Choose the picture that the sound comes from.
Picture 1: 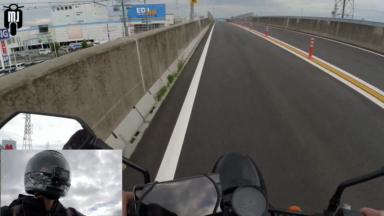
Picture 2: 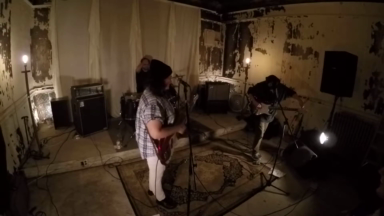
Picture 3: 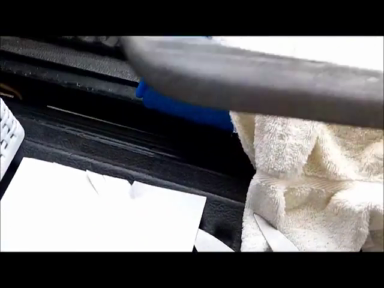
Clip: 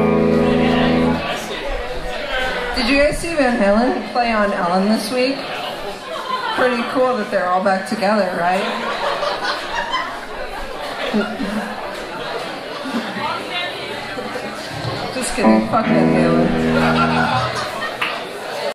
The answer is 2